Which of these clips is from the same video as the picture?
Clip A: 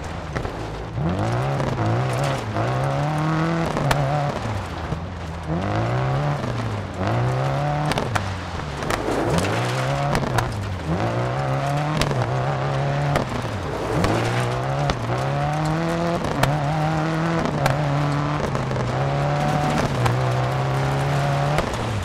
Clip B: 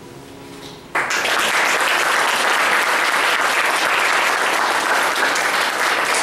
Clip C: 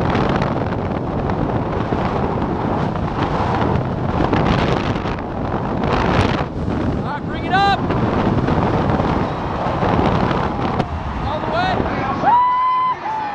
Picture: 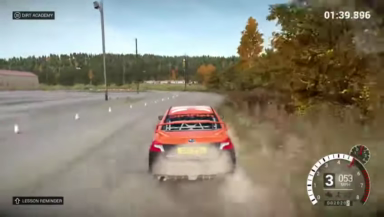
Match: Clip A